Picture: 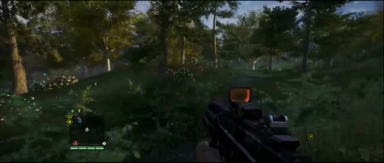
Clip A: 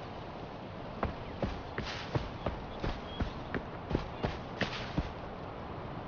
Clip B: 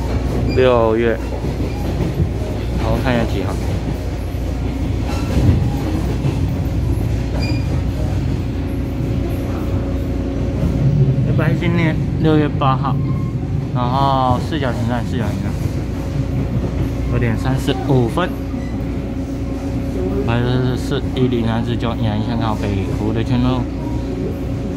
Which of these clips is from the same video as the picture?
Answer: A